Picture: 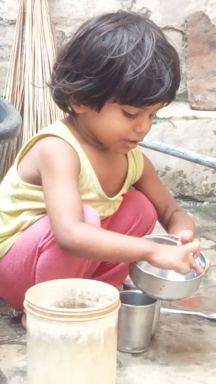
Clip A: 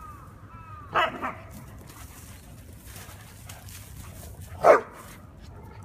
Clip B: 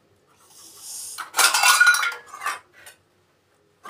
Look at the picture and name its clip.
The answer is B